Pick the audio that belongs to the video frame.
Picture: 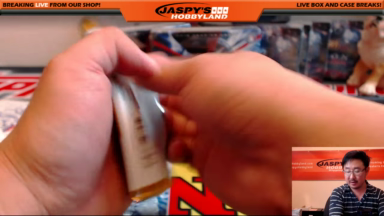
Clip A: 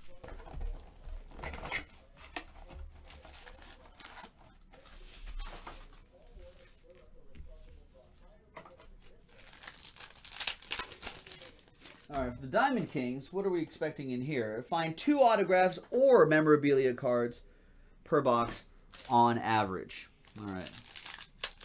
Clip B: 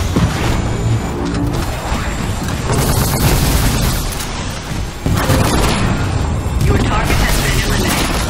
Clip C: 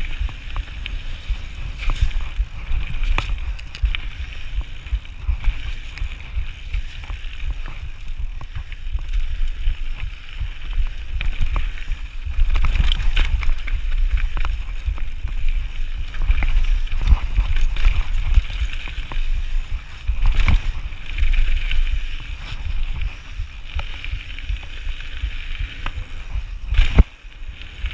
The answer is A